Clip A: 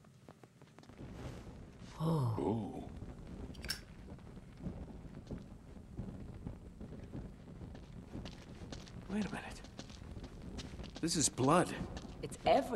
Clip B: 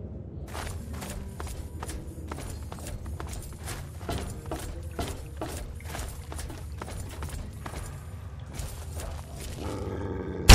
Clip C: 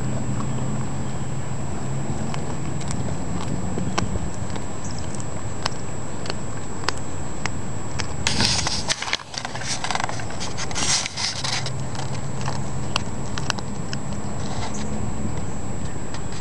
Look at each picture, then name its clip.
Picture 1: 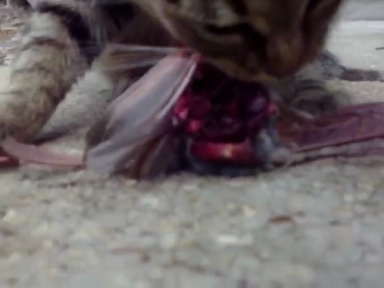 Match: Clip C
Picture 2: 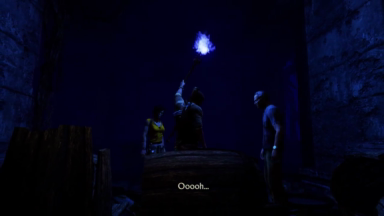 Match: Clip A